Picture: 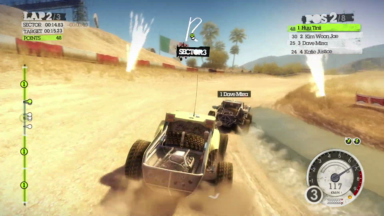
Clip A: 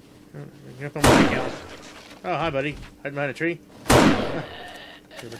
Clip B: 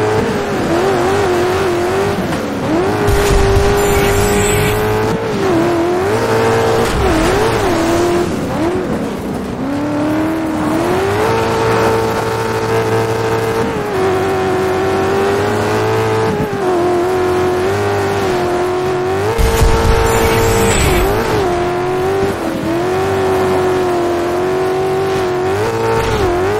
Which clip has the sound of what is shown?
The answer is B